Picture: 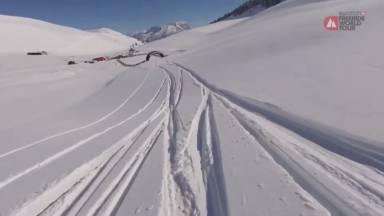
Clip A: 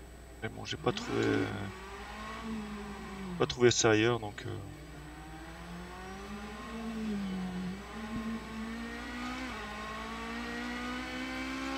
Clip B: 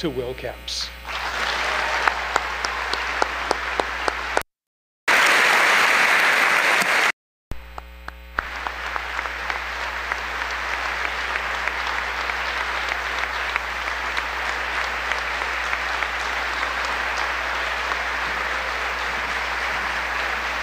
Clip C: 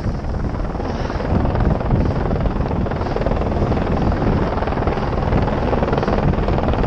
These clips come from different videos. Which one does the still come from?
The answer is C